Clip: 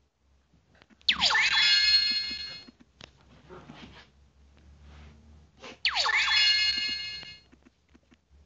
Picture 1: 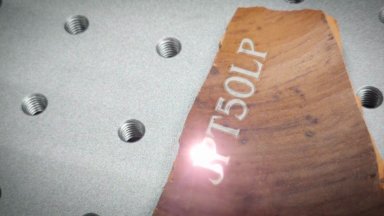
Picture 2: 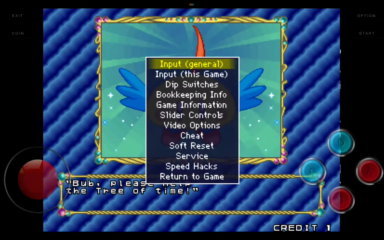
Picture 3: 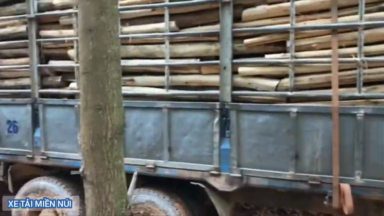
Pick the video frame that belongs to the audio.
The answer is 2